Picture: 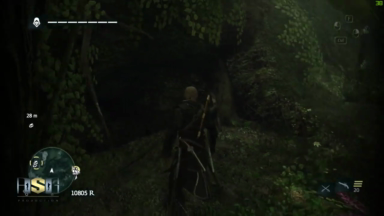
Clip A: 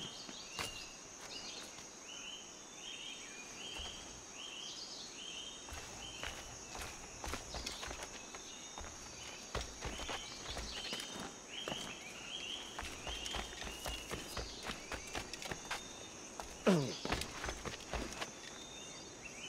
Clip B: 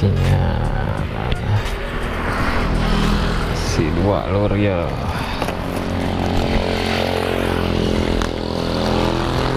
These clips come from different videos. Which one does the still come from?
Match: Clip A